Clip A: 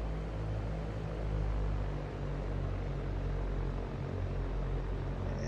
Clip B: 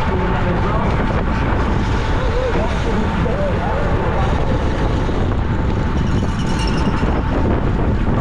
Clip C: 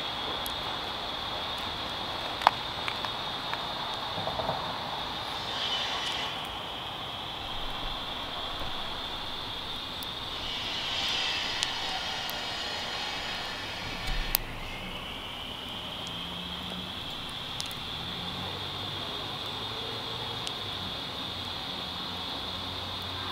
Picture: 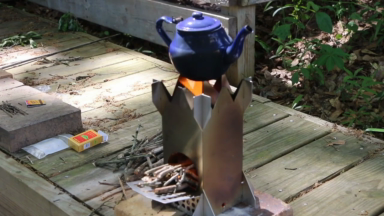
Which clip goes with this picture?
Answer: C